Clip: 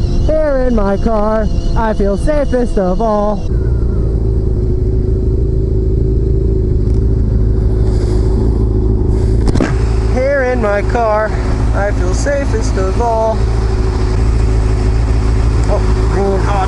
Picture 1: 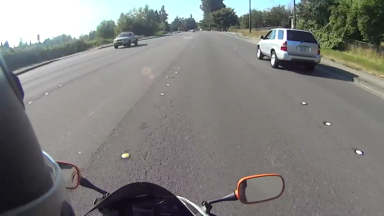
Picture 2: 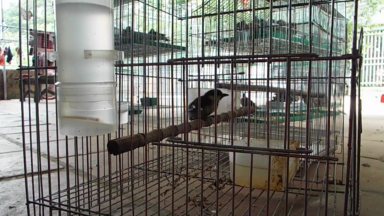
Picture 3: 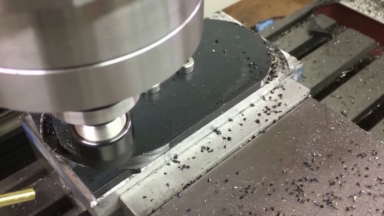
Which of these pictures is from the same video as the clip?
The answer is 1